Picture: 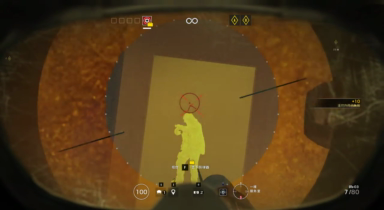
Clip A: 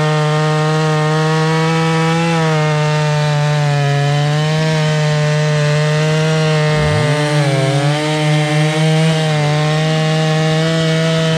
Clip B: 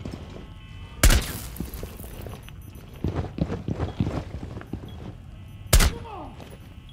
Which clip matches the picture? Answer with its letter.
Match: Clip B